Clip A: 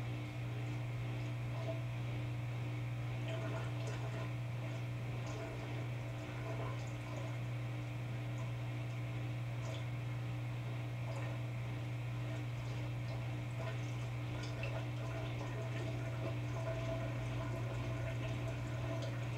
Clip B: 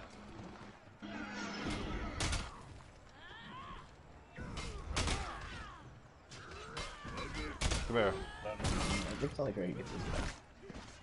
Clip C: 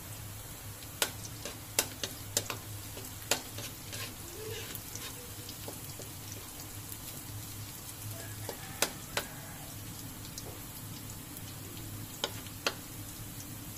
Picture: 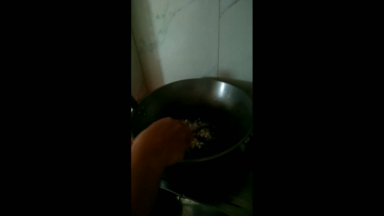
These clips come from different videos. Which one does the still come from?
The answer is C